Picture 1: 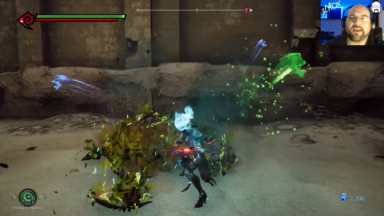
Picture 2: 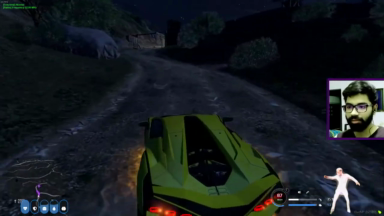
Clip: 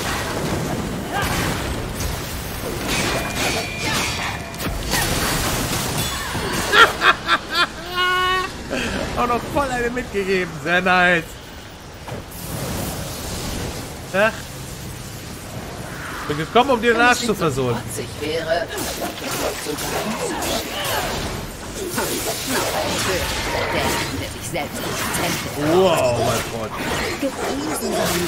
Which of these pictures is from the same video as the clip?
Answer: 1